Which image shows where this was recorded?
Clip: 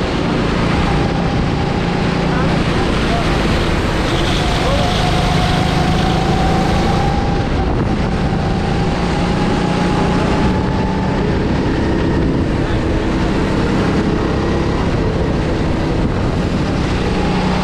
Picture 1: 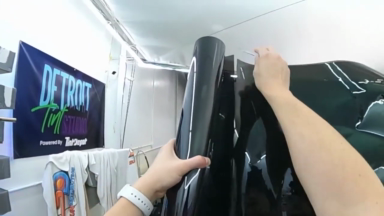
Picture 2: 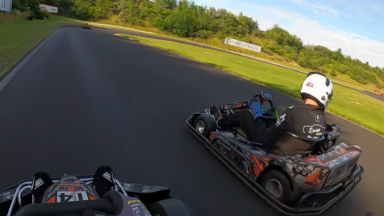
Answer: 2